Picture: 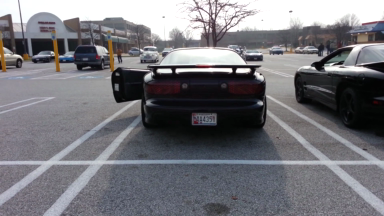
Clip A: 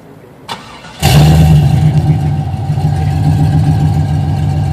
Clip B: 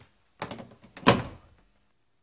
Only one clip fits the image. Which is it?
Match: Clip A